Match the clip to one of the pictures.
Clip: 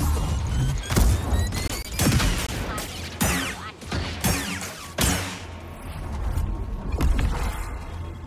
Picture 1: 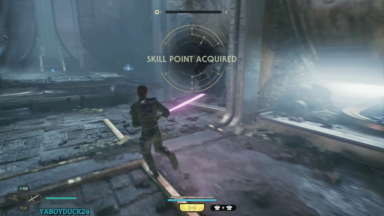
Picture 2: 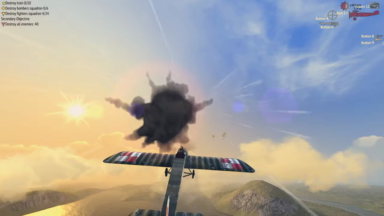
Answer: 1